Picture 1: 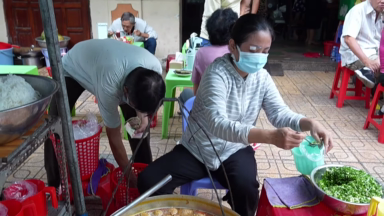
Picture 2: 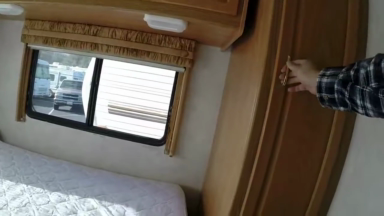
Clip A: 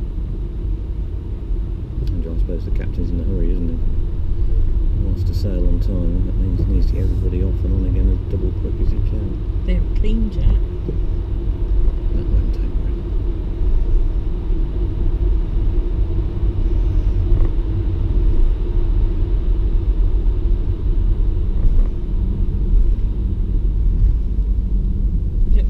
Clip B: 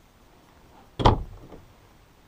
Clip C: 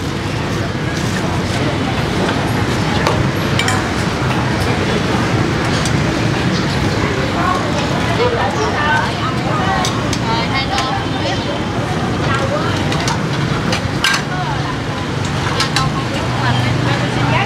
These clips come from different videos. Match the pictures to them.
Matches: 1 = C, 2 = B